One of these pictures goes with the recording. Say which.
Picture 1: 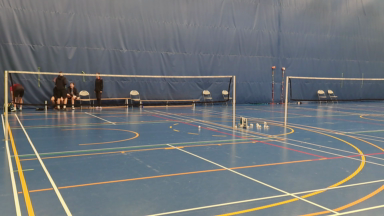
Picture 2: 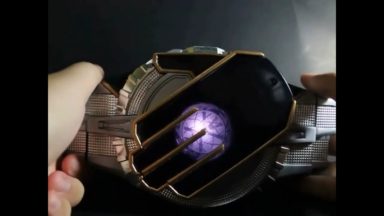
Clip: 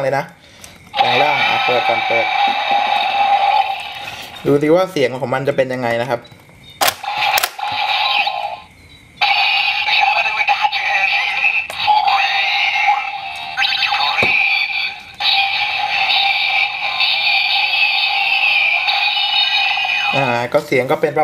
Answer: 2